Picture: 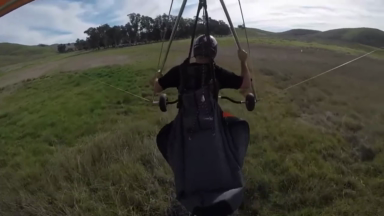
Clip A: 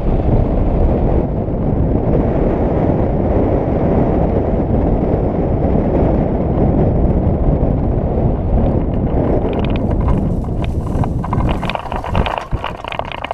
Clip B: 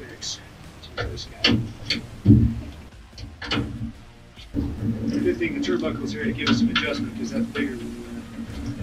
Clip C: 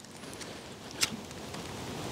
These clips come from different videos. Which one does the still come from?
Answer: A